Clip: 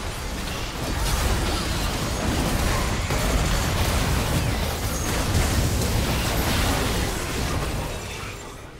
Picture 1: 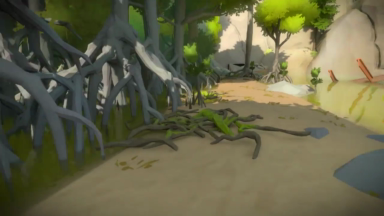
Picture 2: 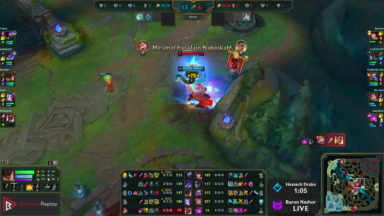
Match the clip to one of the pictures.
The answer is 2